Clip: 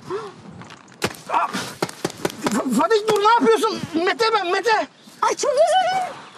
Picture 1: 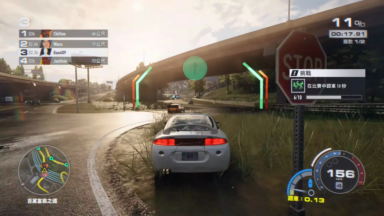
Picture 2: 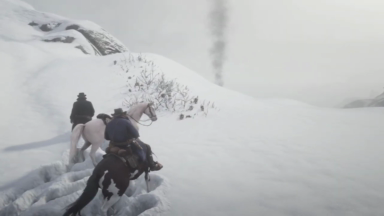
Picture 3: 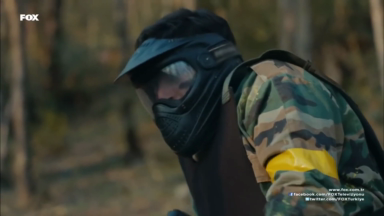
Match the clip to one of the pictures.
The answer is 3